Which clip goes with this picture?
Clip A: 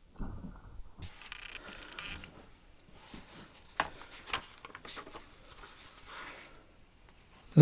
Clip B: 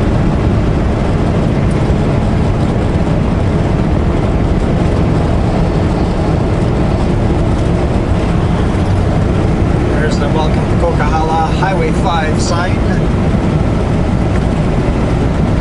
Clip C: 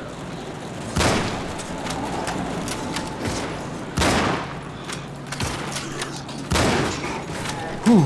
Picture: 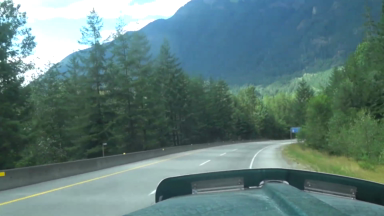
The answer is B